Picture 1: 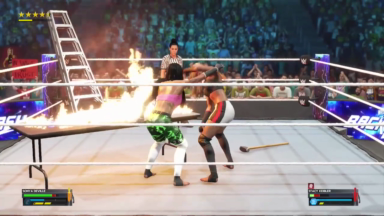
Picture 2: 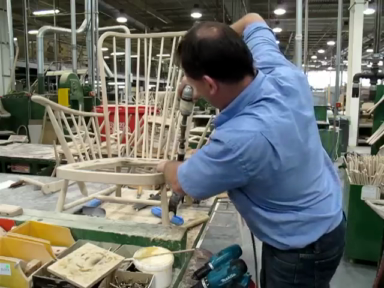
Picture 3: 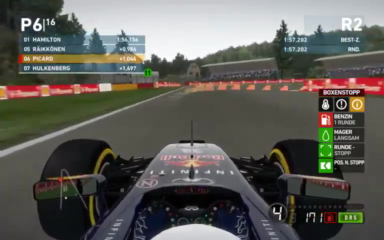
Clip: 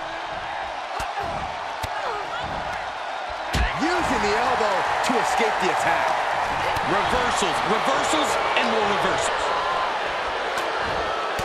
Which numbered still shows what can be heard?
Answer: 1